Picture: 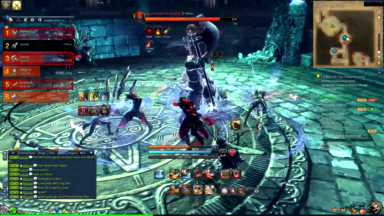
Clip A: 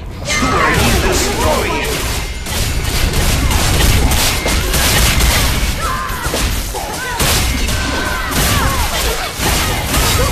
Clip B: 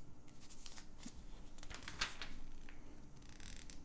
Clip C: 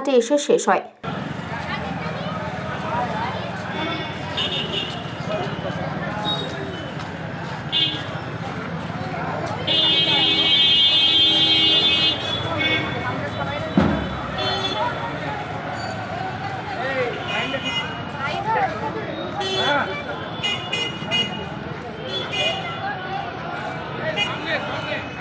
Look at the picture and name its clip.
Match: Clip A